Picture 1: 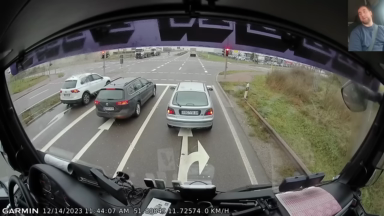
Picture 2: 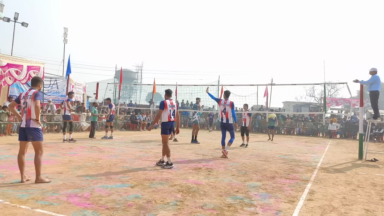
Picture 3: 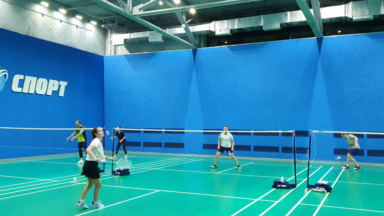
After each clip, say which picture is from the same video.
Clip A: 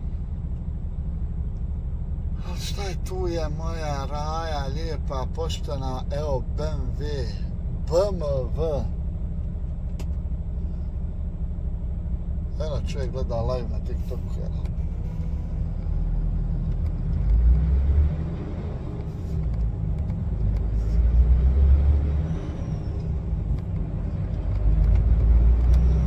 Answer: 1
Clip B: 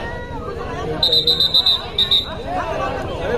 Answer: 2